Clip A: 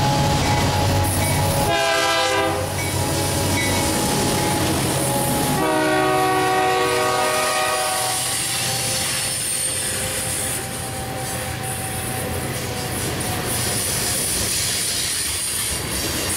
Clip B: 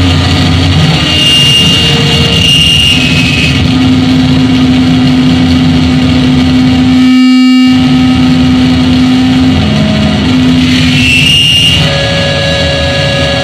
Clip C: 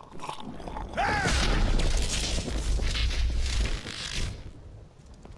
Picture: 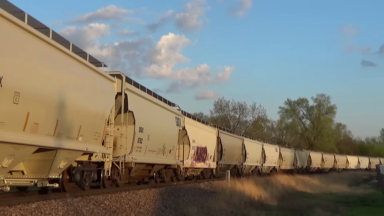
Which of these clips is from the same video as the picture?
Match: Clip A